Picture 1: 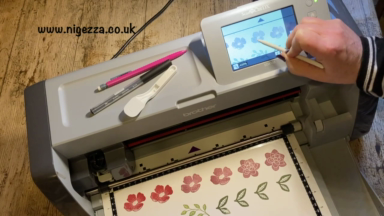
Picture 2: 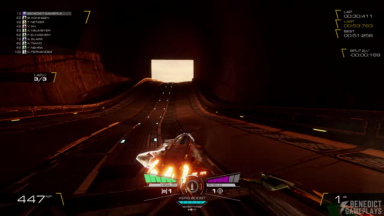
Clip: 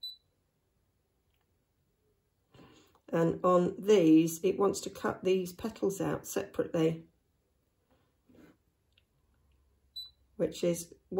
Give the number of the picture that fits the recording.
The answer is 1